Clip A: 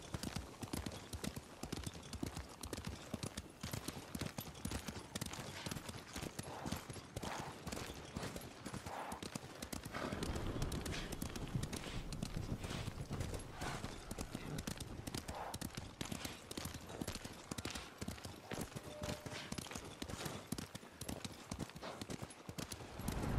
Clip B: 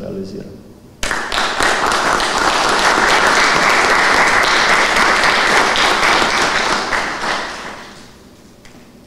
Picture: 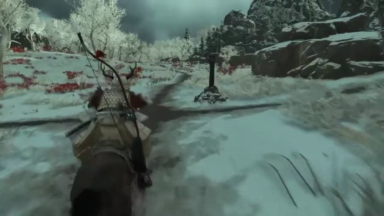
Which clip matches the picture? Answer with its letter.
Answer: A